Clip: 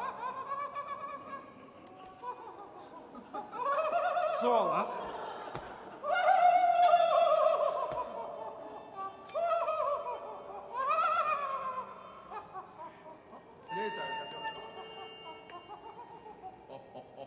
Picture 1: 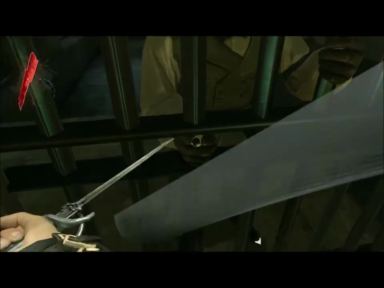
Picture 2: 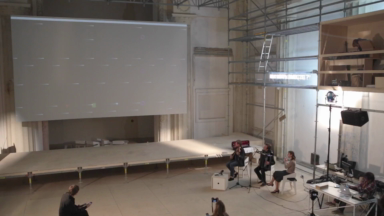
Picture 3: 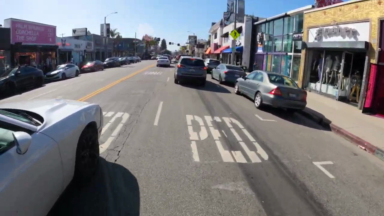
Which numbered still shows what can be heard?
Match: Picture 2